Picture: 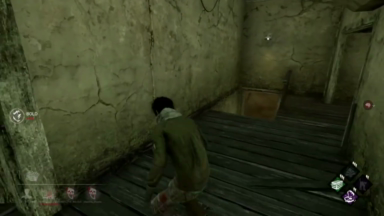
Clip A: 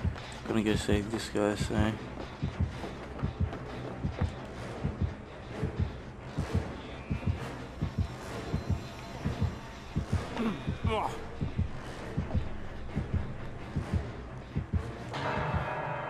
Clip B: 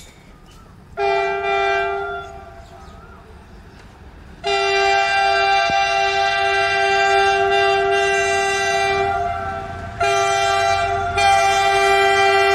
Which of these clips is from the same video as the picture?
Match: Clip A